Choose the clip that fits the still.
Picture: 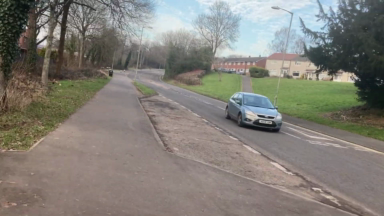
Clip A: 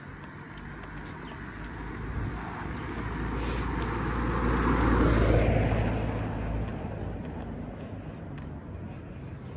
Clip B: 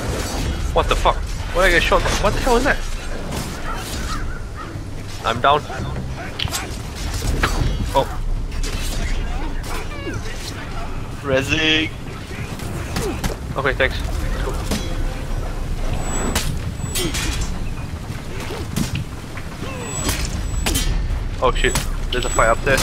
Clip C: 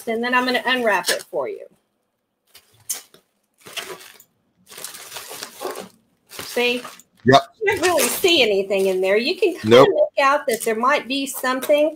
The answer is A